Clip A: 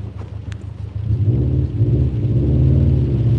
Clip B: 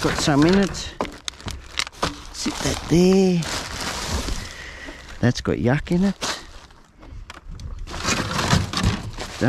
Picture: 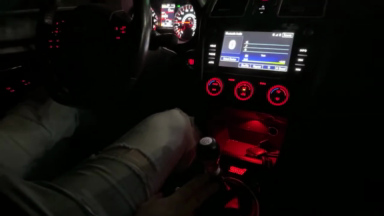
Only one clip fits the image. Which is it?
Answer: A